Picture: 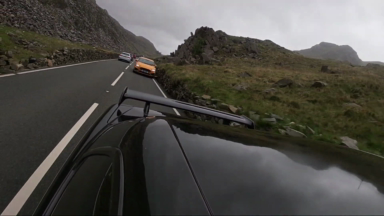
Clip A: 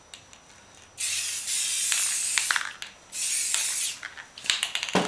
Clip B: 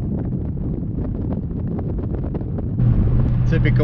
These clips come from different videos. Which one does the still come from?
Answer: B